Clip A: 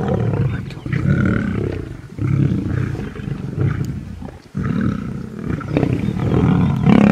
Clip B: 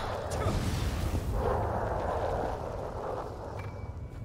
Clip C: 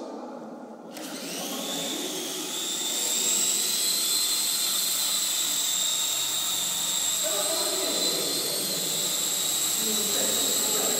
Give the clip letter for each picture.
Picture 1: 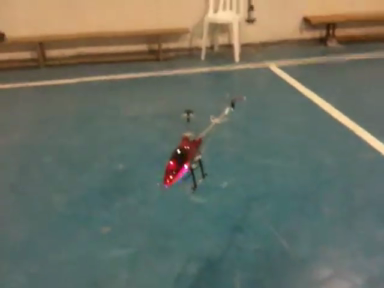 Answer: C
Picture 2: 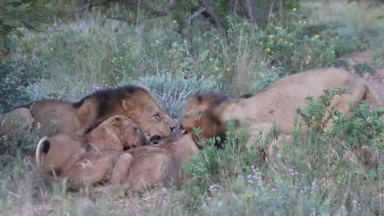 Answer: A